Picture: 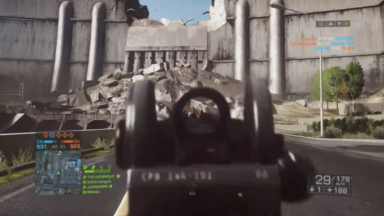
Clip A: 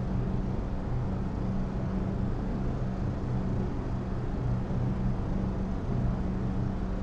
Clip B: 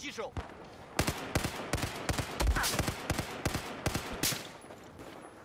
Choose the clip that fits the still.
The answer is B